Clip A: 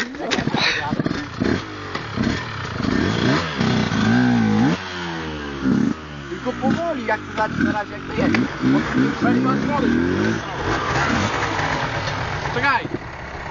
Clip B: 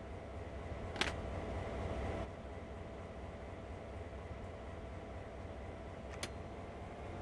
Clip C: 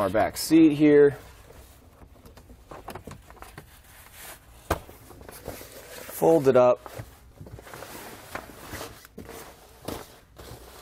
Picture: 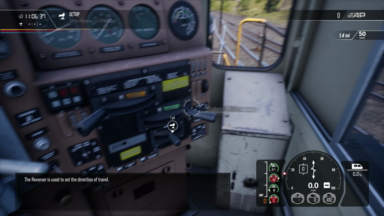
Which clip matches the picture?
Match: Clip B